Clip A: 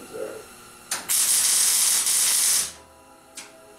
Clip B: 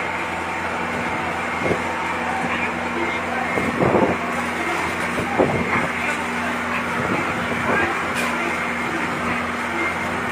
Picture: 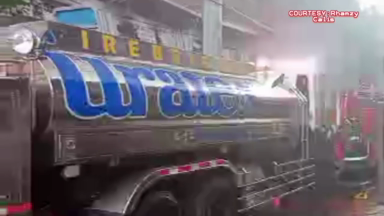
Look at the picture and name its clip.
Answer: B